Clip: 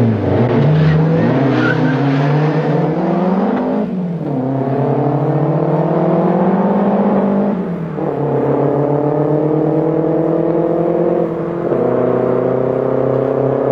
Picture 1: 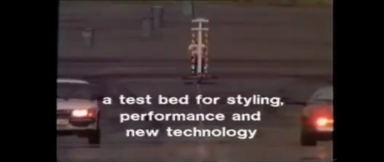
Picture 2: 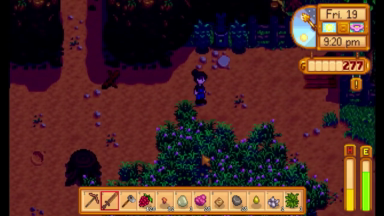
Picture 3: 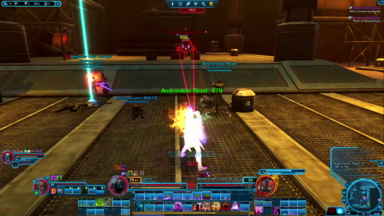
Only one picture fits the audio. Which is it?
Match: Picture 1